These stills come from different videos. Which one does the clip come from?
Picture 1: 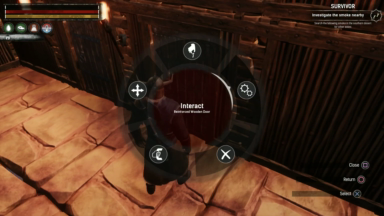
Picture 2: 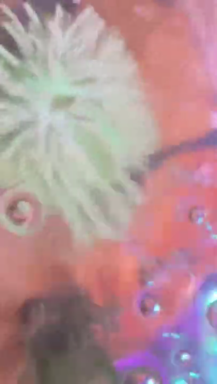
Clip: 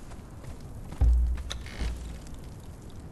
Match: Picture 1